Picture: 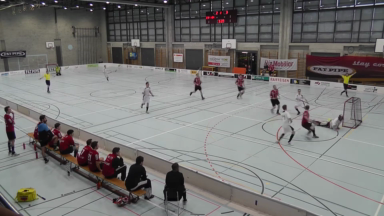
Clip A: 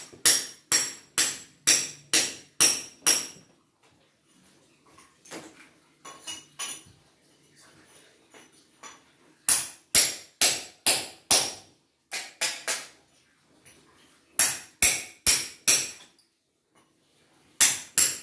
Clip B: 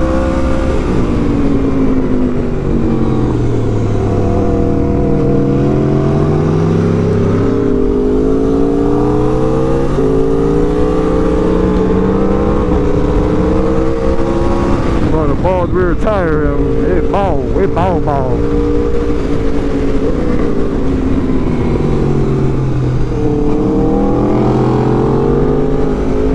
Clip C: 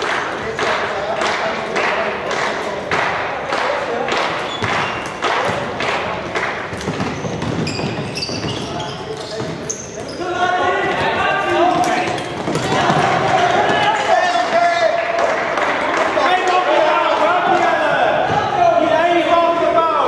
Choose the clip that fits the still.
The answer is C